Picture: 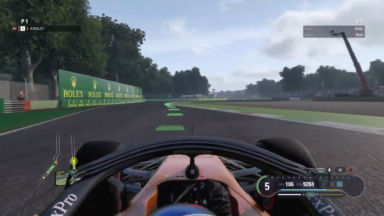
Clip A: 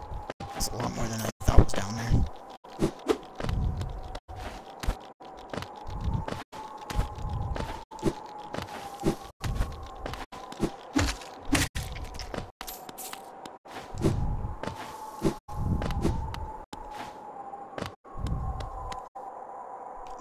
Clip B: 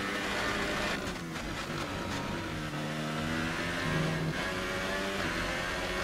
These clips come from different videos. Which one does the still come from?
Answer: B